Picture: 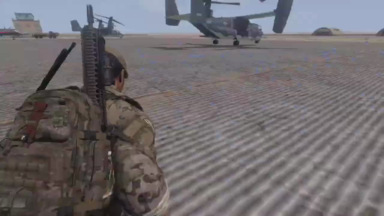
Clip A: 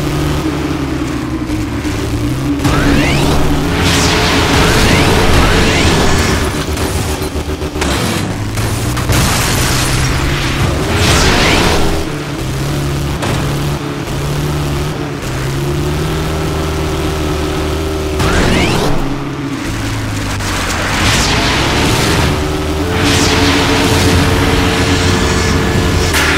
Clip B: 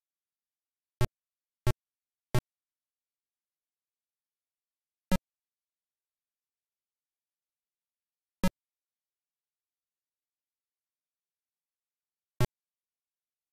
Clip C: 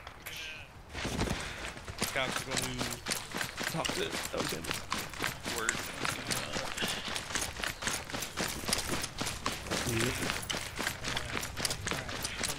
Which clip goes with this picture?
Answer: C